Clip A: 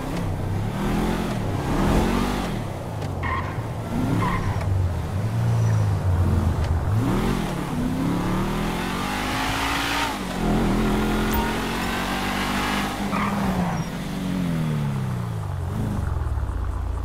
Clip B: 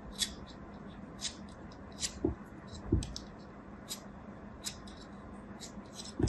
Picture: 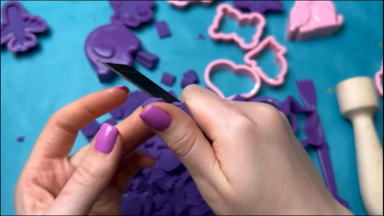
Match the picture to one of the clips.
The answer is B